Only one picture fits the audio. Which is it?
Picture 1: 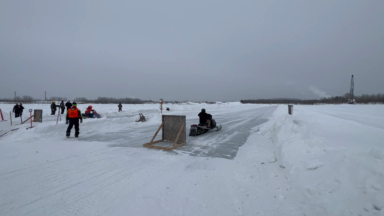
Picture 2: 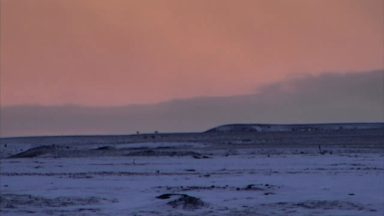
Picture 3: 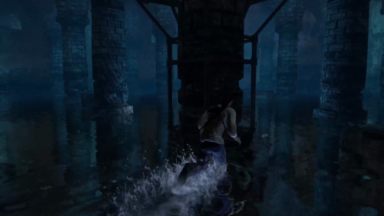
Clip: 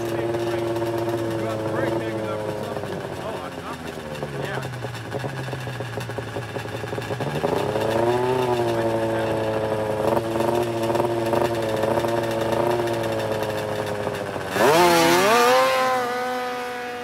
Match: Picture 1